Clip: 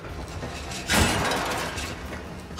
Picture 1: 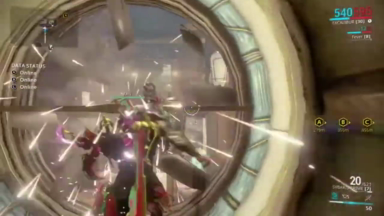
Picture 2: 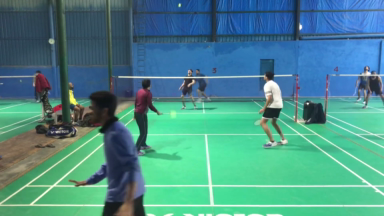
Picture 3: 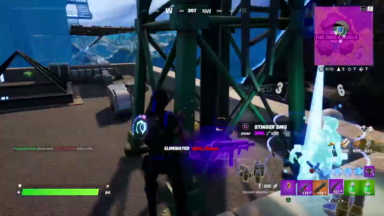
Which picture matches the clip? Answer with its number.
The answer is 1